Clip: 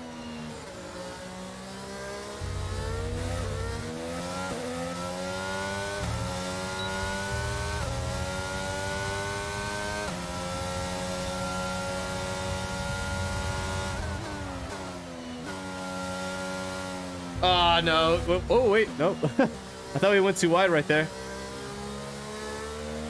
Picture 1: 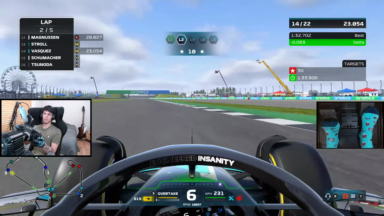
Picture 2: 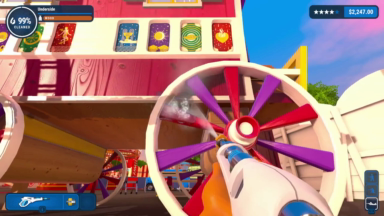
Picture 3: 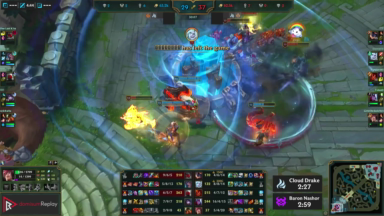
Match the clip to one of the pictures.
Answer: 1